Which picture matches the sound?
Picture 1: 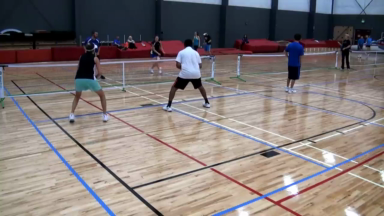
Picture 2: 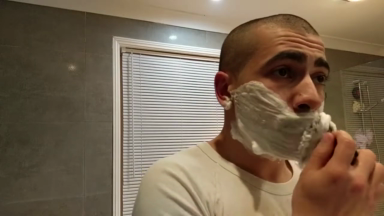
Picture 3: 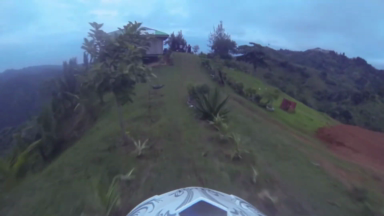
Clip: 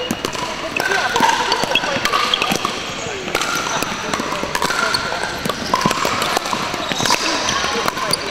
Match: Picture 1